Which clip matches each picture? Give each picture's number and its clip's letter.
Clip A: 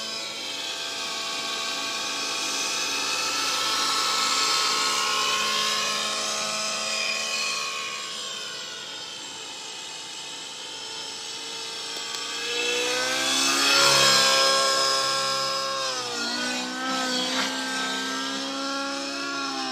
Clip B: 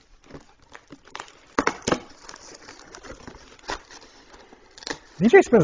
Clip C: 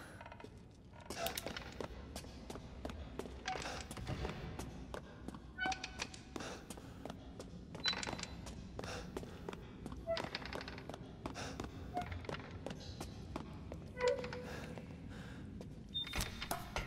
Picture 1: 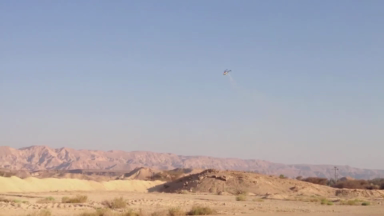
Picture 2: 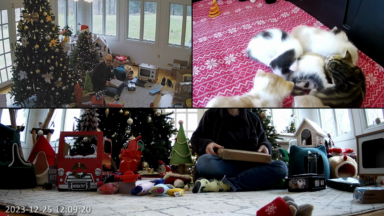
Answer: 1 A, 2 B